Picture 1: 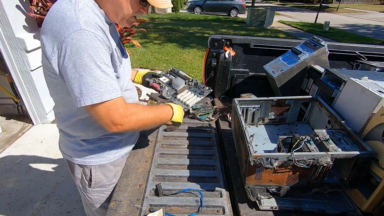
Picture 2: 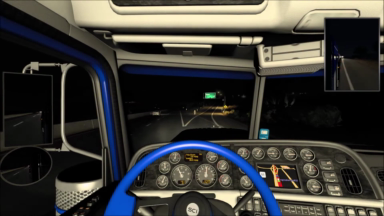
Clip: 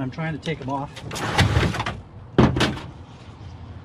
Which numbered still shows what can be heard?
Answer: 1